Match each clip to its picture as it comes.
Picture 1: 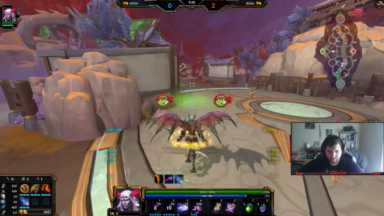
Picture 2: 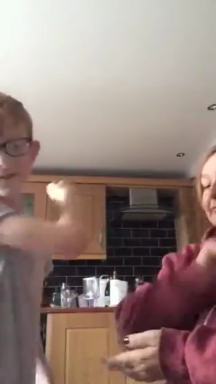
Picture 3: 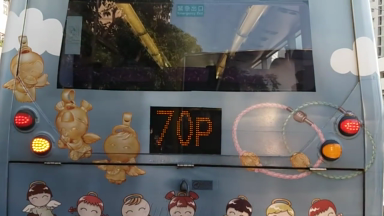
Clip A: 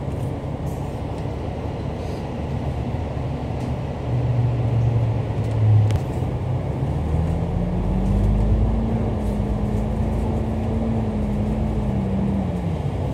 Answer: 3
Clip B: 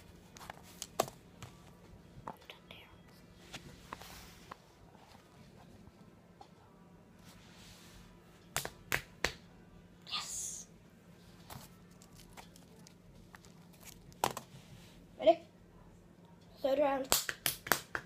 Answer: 2